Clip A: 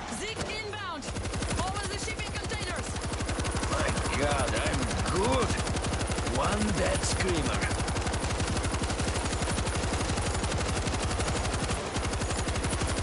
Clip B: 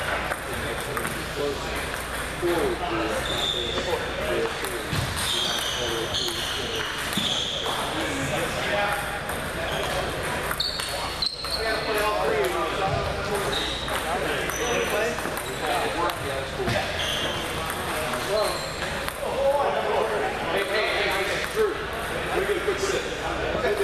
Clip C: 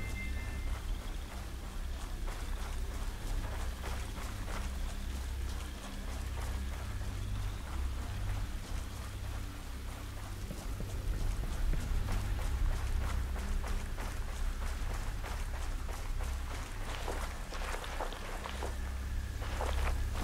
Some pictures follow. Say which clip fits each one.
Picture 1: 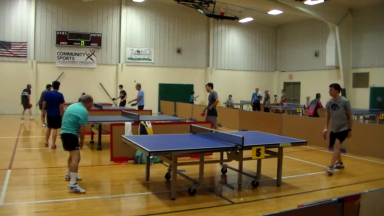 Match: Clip B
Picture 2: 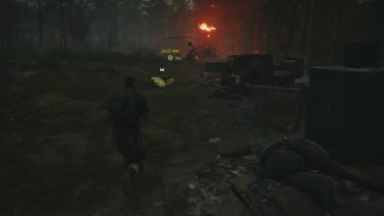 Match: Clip C